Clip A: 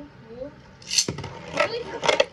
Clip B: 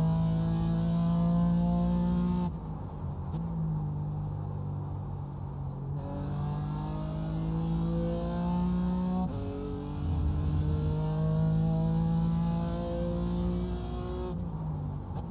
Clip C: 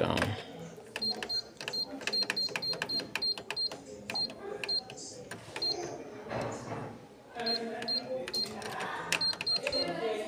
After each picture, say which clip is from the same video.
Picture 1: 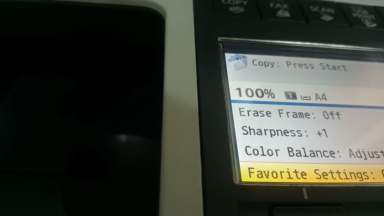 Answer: C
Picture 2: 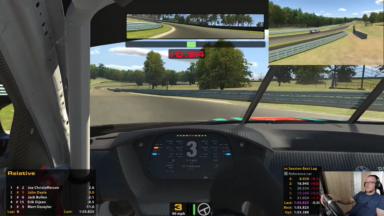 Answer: B